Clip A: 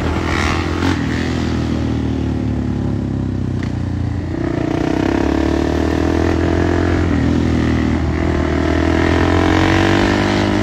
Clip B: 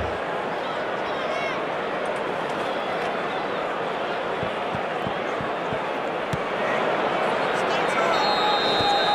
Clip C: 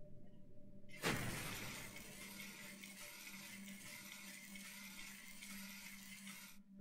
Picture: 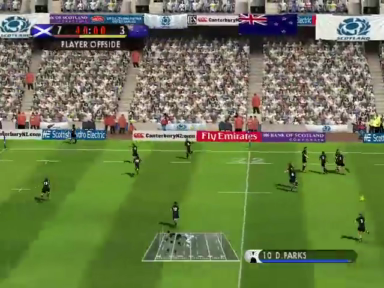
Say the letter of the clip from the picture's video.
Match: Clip B